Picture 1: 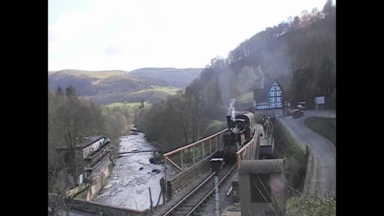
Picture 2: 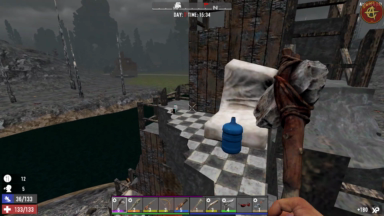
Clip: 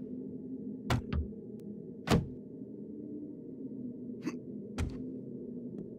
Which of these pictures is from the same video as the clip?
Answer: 2